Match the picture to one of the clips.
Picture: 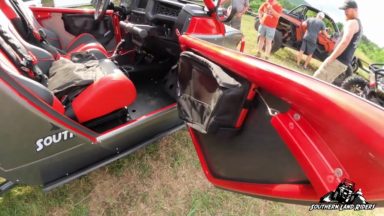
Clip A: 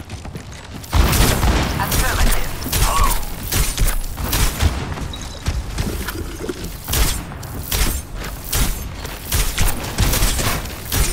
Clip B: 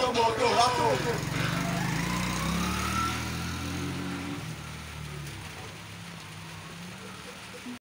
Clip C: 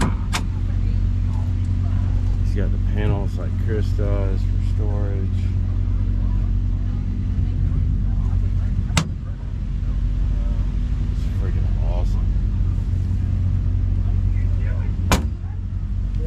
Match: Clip C